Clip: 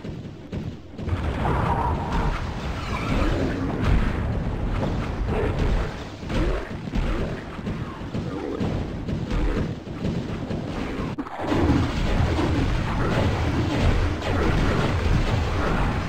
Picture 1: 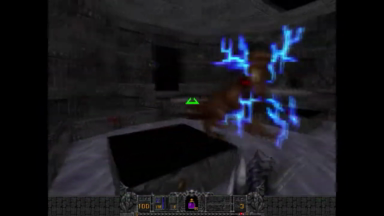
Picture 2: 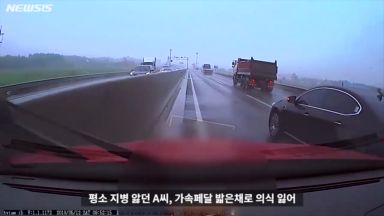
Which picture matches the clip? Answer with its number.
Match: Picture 1